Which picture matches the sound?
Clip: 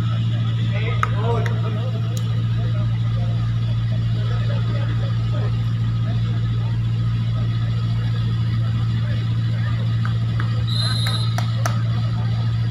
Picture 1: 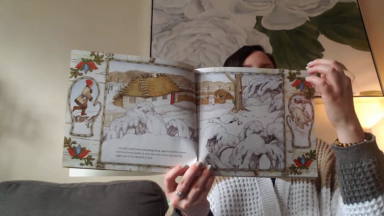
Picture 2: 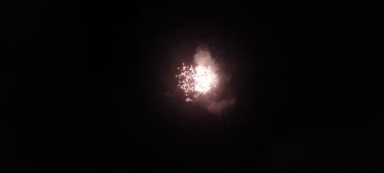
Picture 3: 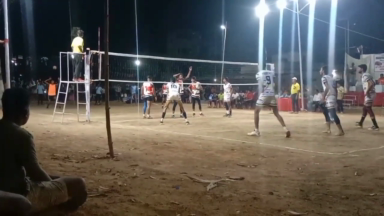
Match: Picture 3